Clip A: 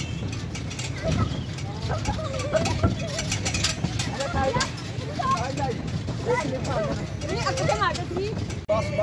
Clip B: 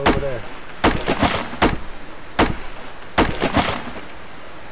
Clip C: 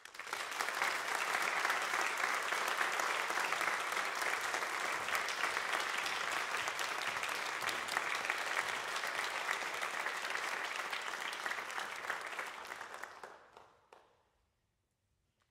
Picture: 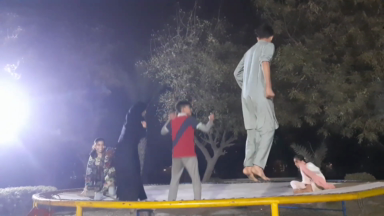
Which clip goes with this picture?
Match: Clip A